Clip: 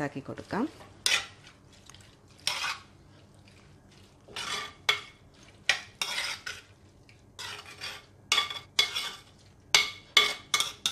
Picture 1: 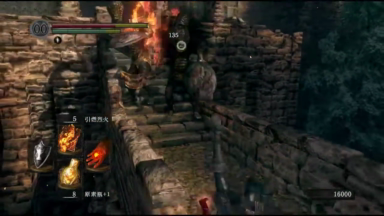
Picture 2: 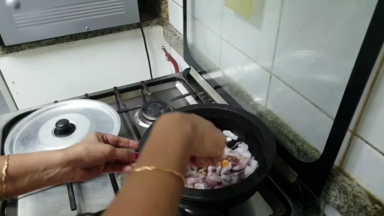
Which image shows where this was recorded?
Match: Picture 2